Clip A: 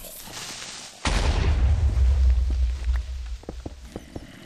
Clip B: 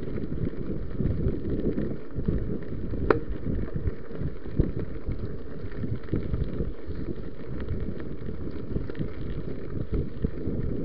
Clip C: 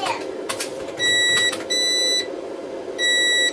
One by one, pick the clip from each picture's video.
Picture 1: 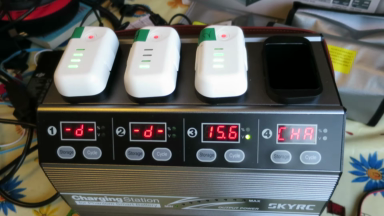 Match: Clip C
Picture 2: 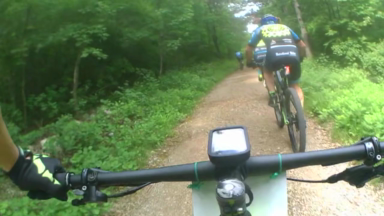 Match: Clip B